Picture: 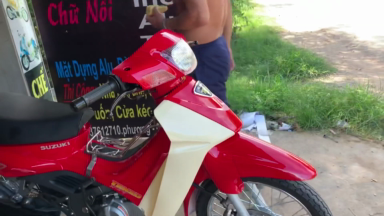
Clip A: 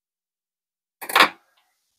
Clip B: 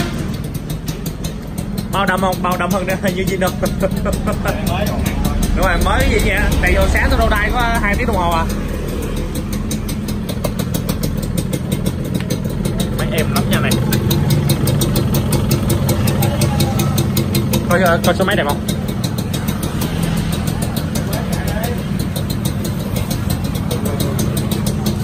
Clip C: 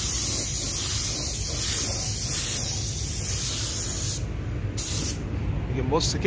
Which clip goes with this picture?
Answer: B